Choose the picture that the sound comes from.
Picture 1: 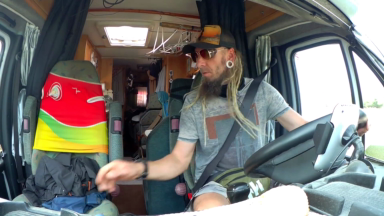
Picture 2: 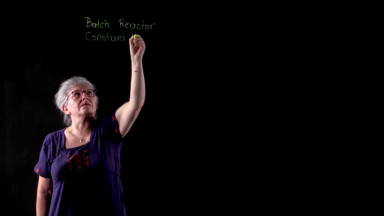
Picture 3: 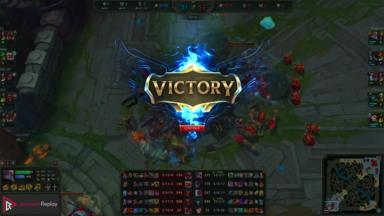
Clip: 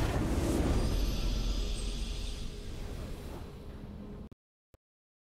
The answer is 3